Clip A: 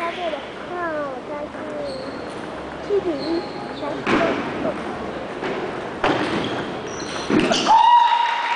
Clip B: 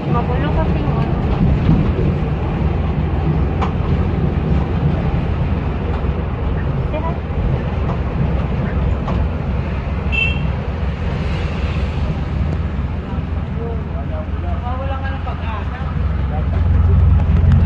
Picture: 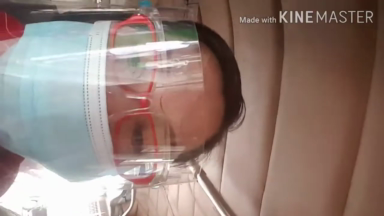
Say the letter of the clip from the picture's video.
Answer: B